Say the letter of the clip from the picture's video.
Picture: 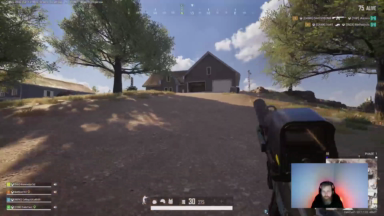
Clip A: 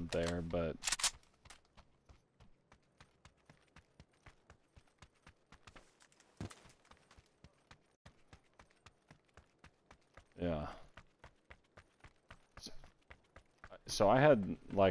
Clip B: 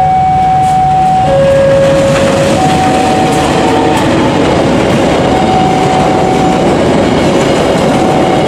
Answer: A